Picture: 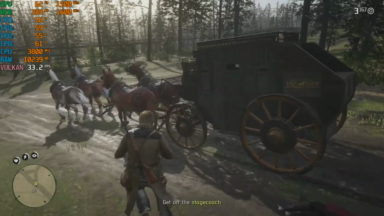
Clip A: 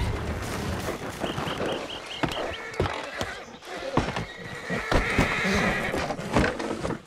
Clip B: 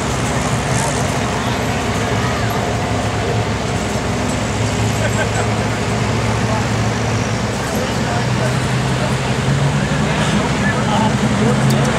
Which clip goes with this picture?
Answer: A